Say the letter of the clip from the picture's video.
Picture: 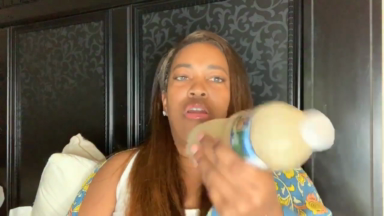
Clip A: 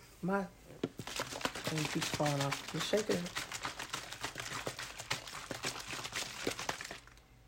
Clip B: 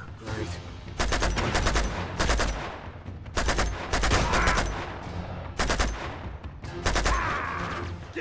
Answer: A